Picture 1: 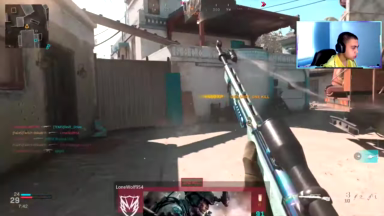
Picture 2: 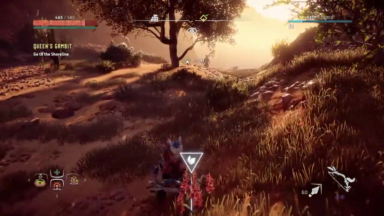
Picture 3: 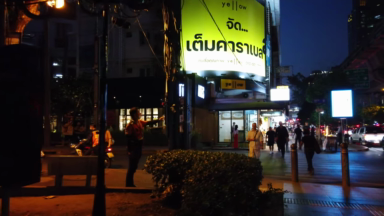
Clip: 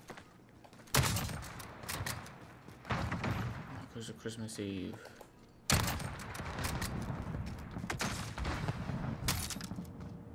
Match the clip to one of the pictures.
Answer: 1